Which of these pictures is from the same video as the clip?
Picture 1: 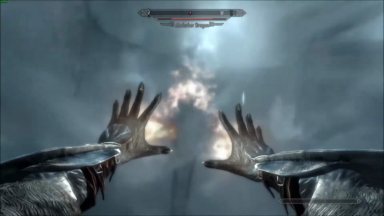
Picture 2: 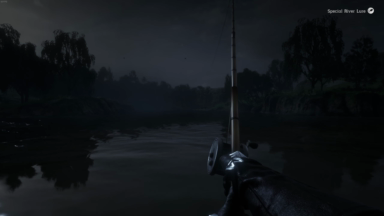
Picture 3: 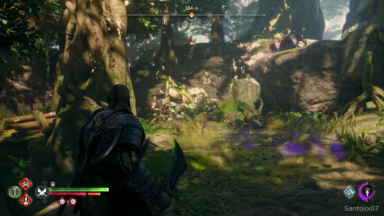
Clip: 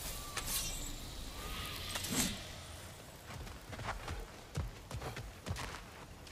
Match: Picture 3